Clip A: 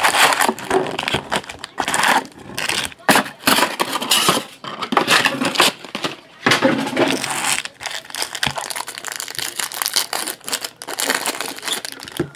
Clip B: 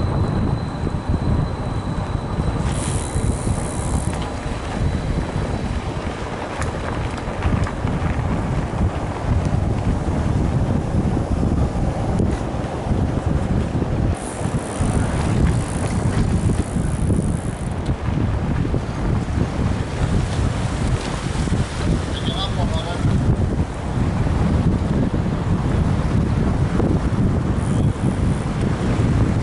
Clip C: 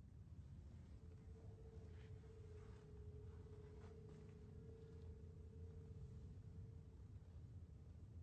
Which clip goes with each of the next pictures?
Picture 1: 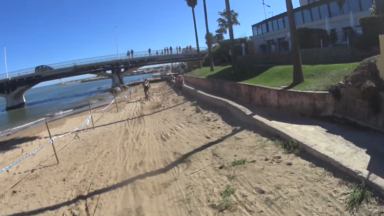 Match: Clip B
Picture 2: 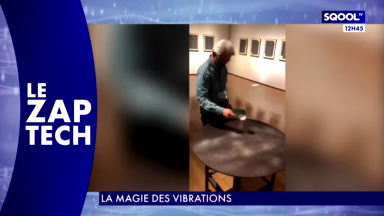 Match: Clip C